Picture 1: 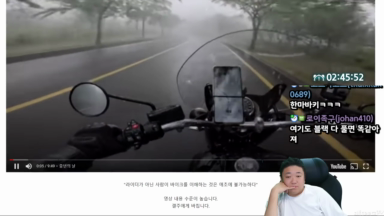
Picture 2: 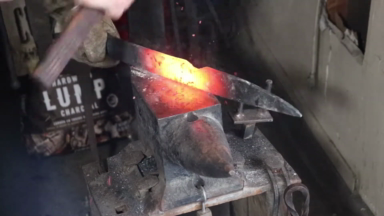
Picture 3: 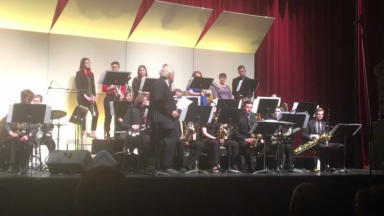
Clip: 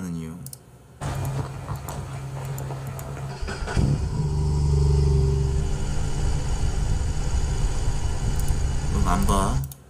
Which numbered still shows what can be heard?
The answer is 1